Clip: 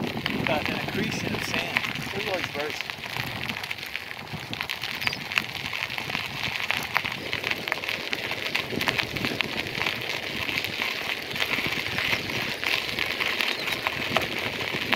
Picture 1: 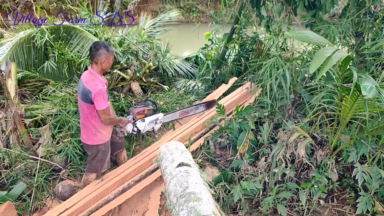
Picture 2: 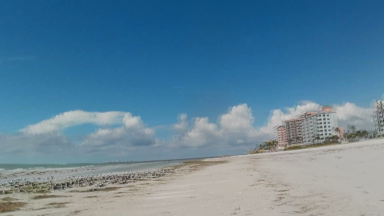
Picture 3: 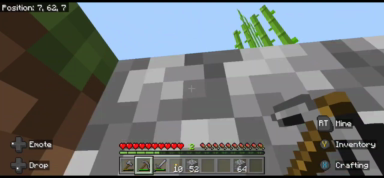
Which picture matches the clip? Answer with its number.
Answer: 2